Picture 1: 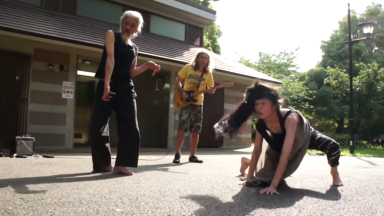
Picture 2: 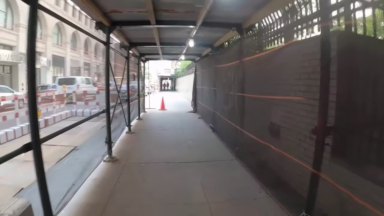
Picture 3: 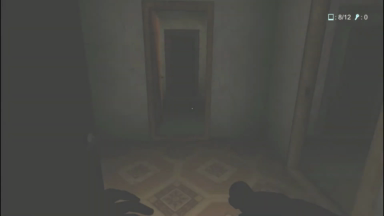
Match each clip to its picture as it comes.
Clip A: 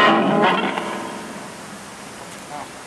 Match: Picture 1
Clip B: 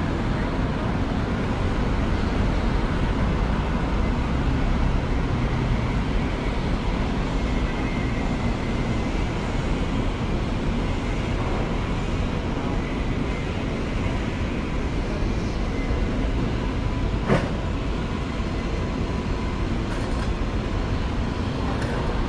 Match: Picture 2